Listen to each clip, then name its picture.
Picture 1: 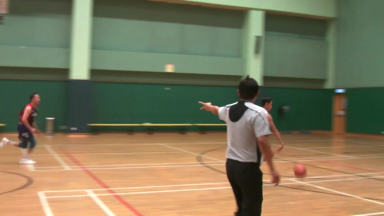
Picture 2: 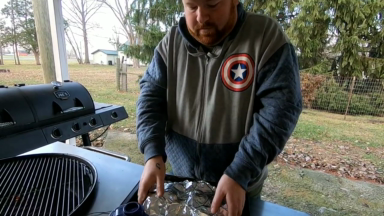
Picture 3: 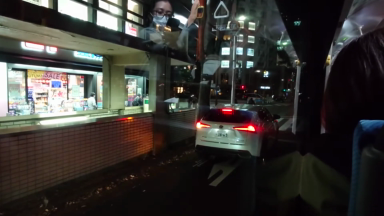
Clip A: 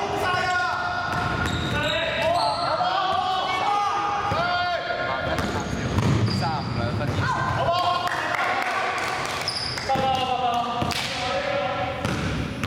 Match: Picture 1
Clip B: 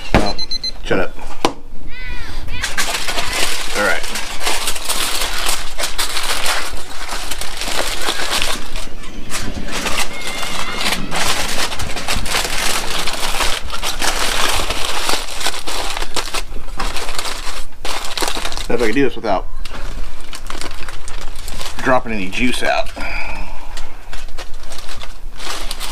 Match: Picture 2